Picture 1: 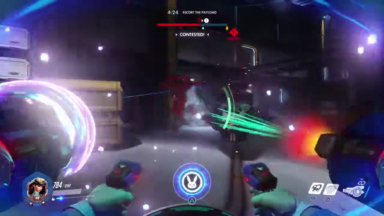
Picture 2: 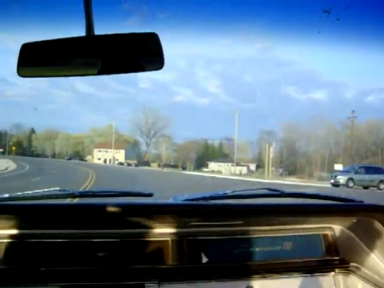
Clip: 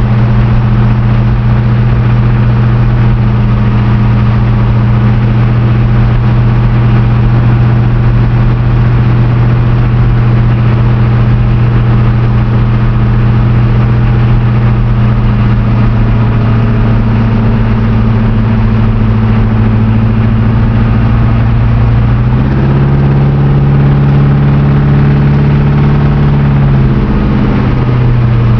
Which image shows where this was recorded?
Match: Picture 2